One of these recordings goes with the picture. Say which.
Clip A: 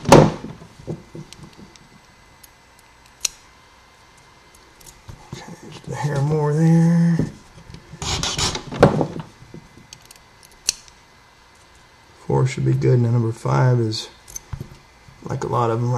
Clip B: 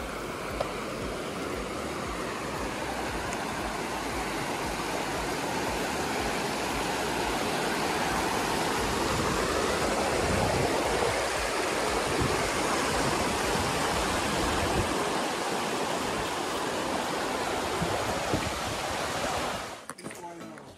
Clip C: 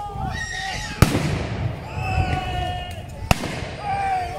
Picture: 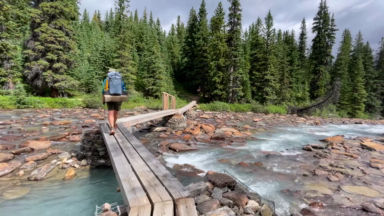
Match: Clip B